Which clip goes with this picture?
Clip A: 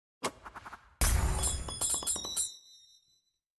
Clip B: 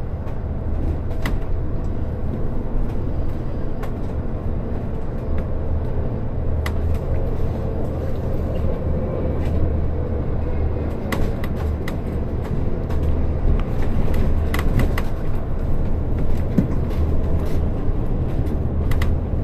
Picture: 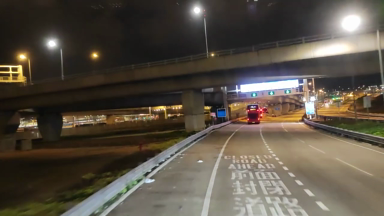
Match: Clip B